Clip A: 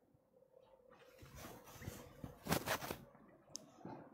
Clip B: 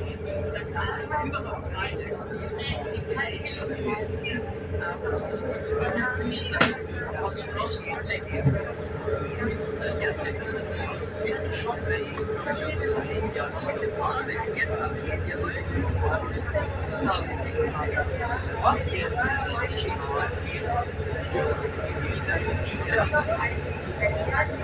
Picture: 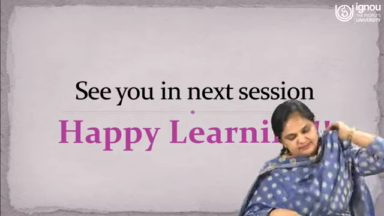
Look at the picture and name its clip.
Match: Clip A